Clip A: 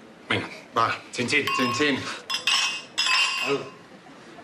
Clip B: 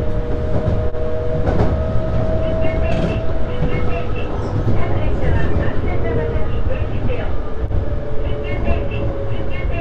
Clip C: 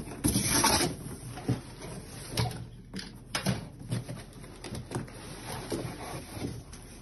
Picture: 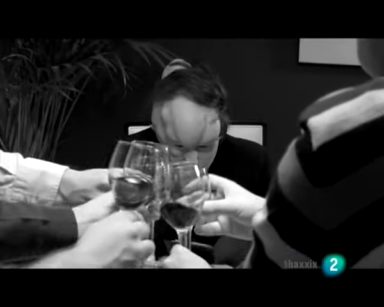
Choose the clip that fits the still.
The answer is A